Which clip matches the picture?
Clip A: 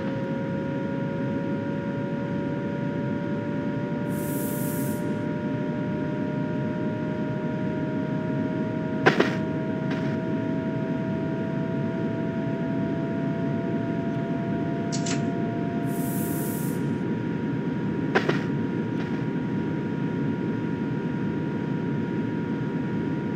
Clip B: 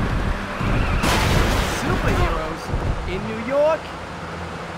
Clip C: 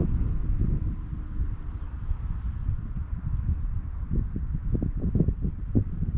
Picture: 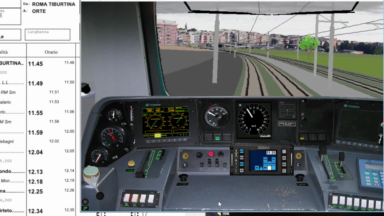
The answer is A